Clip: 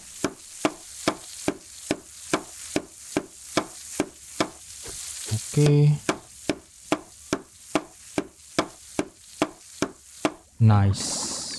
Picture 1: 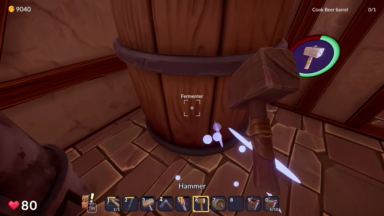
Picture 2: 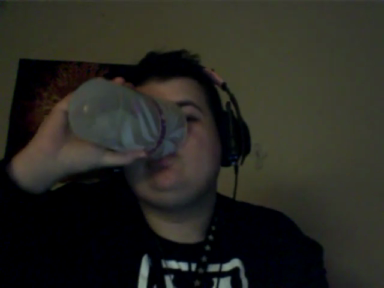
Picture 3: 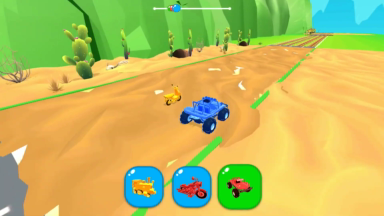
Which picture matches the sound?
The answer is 1